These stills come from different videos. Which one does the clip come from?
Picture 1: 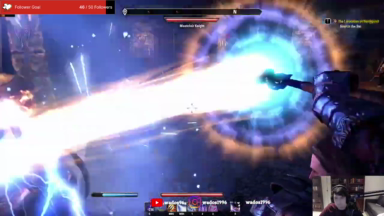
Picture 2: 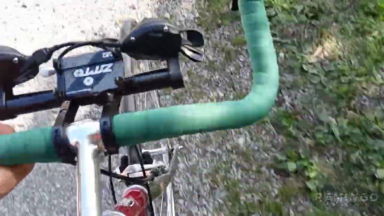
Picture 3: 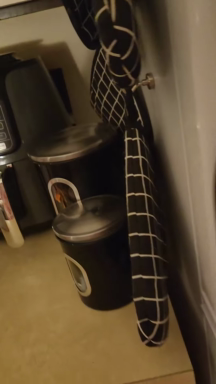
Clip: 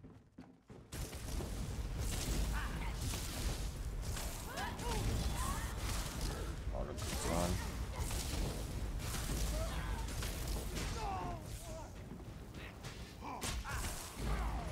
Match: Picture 1